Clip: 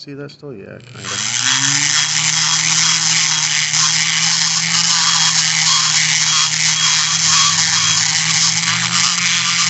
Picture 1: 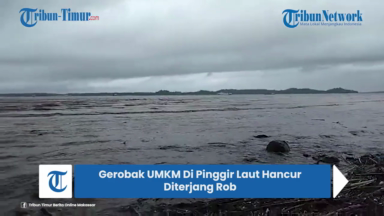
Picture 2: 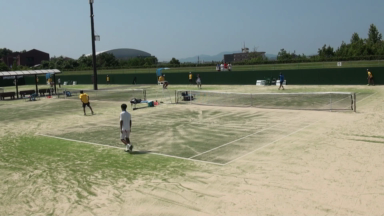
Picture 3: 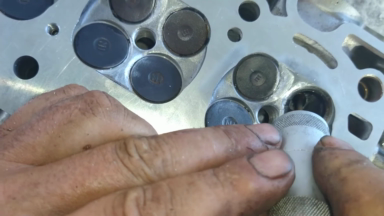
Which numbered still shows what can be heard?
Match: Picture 3